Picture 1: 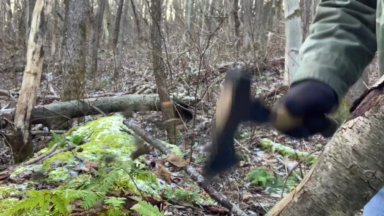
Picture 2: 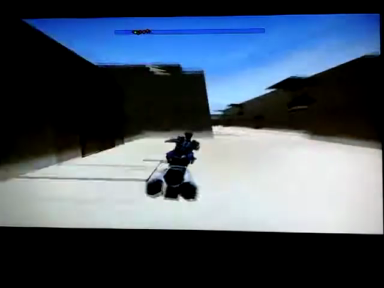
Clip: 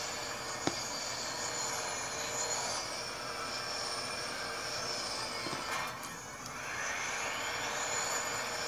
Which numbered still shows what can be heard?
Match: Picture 2